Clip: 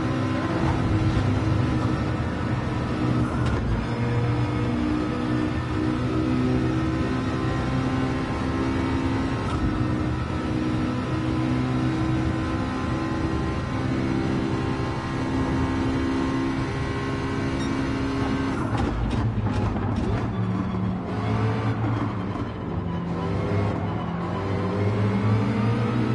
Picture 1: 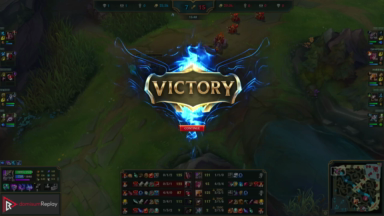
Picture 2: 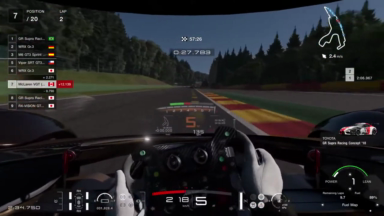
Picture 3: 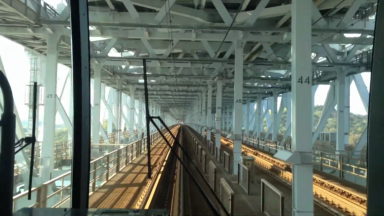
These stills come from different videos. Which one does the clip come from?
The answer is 2